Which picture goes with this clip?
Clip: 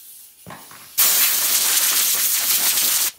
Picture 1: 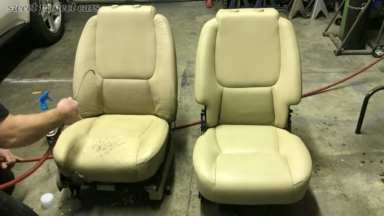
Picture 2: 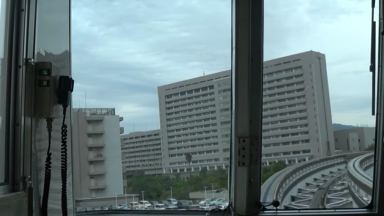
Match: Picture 1